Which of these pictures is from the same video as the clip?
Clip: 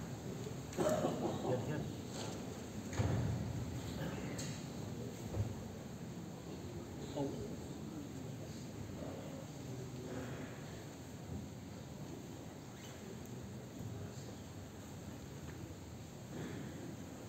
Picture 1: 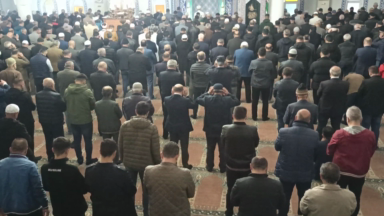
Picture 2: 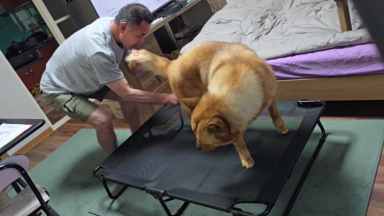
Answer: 1